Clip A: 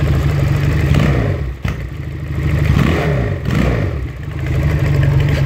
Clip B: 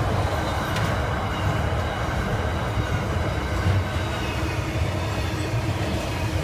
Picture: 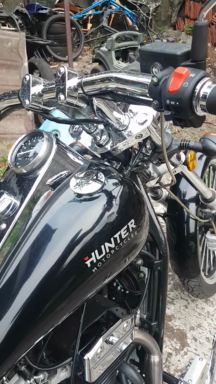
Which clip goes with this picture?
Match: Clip A